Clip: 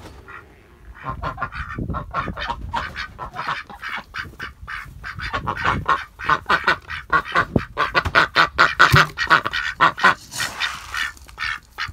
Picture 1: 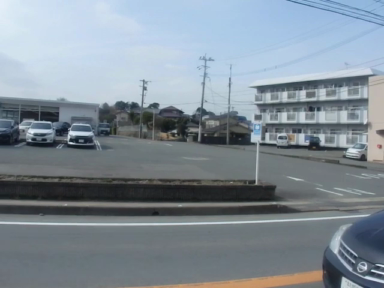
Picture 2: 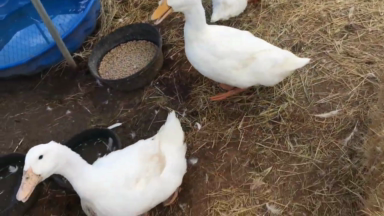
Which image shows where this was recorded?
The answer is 2